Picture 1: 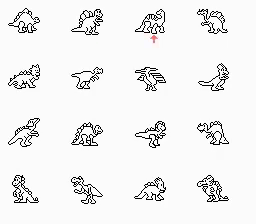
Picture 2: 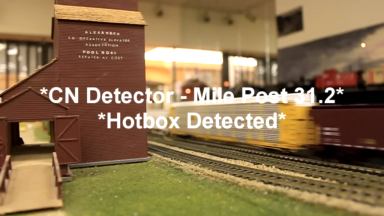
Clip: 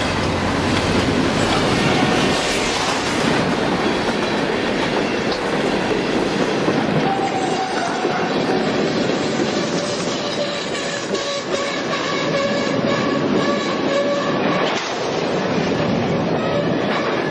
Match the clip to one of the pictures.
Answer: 2